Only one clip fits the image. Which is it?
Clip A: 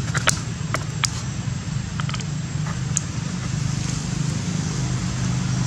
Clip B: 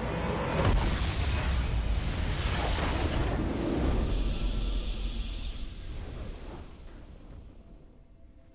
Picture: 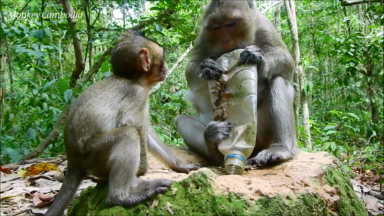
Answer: A